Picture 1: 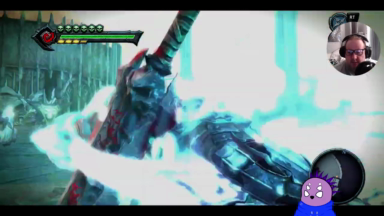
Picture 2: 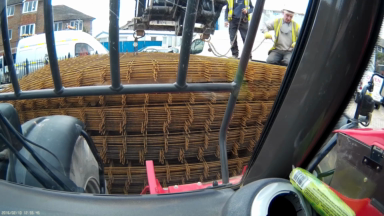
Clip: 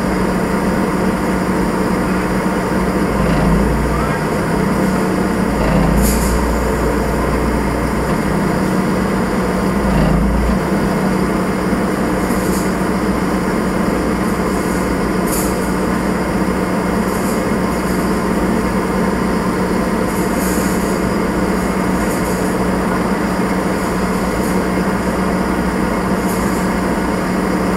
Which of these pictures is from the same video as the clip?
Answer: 2